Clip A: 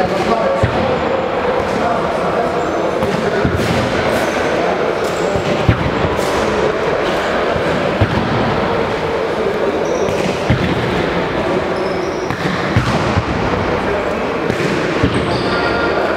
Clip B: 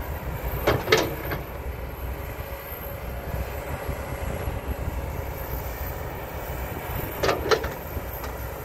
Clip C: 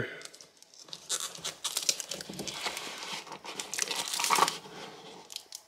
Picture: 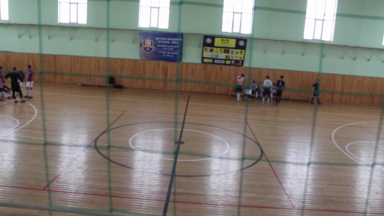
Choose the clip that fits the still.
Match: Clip A